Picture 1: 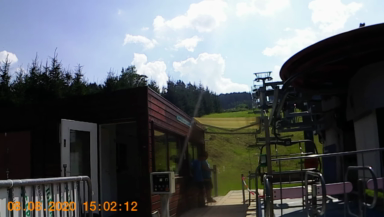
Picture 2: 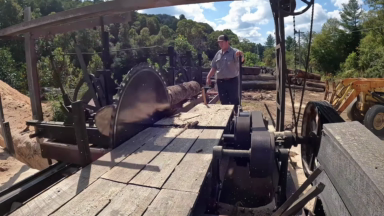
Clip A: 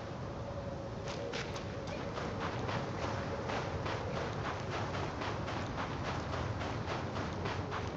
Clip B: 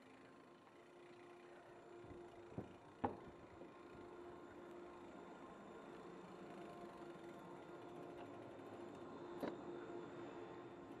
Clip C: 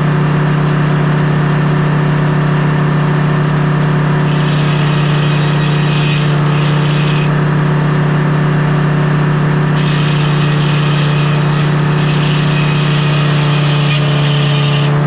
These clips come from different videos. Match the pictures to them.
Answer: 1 B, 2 C